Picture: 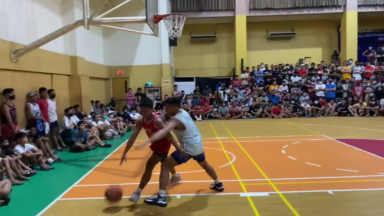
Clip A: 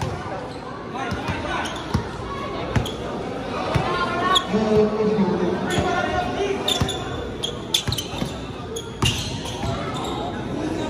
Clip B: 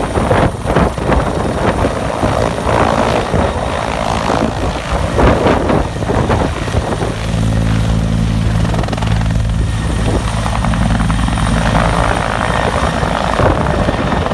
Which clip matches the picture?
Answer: A